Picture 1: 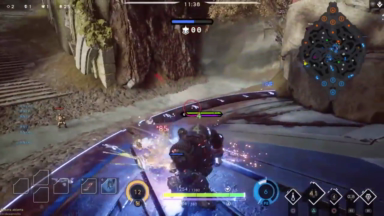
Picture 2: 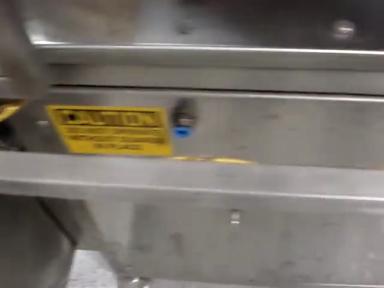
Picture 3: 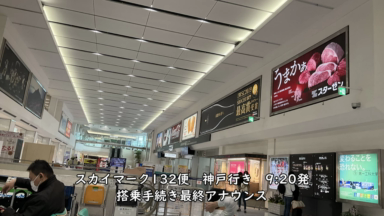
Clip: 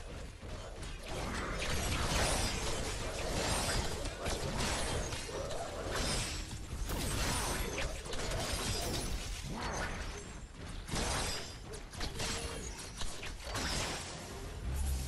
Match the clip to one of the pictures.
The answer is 1